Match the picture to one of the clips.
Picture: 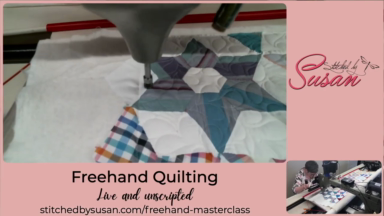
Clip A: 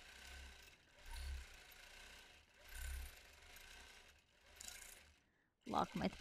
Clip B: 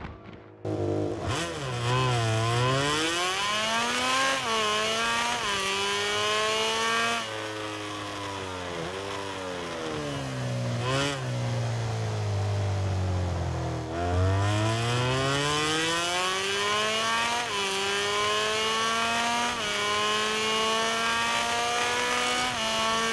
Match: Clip A